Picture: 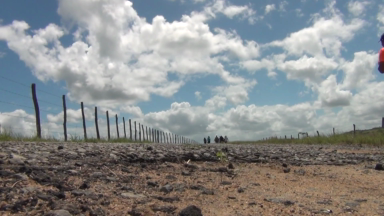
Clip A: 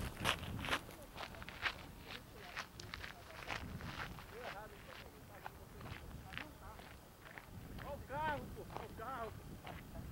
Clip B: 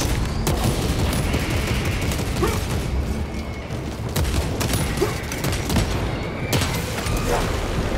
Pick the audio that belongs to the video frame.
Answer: A